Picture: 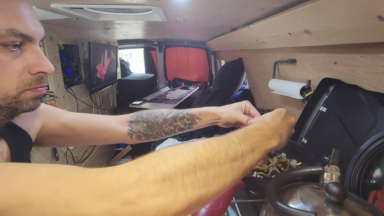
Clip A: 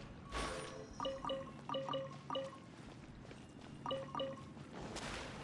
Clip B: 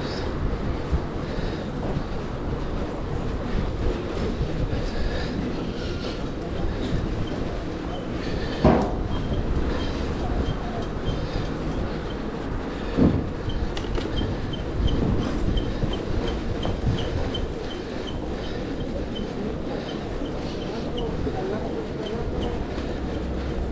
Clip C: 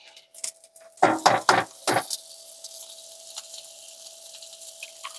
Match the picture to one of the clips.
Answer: C